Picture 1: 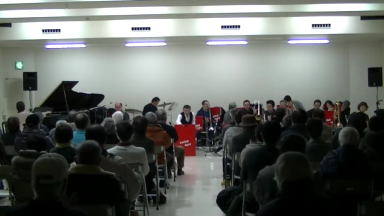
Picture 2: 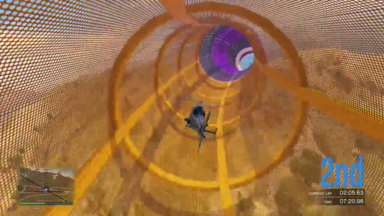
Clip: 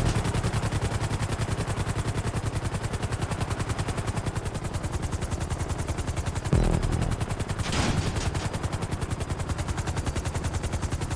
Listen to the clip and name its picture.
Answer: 2